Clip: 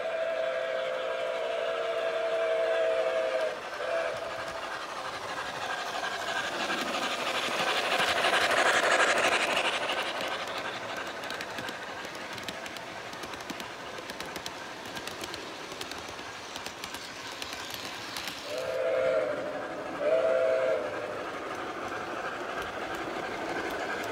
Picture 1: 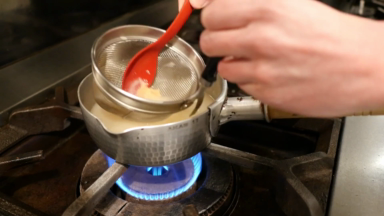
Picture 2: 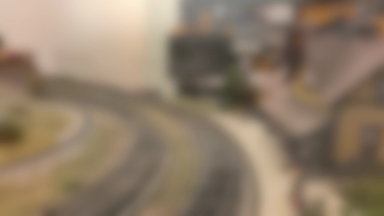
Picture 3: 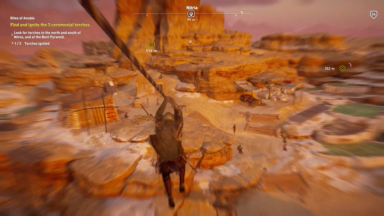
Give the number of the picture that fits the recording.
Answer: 2